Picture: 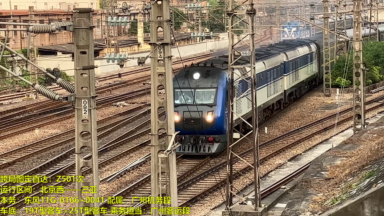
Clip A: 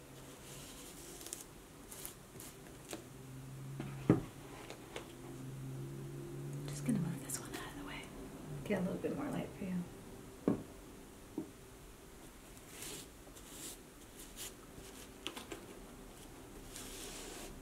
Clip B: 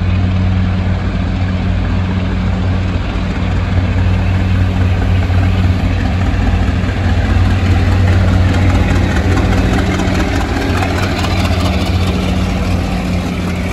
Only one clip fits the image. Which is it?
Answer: B